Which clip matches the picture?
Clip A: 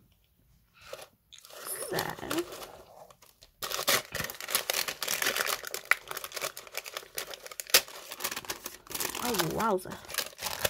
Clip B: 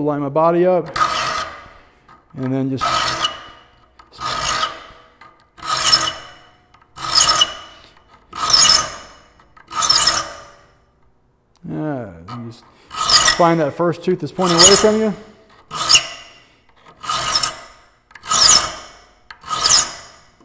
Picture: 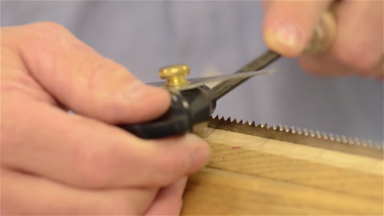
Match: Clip B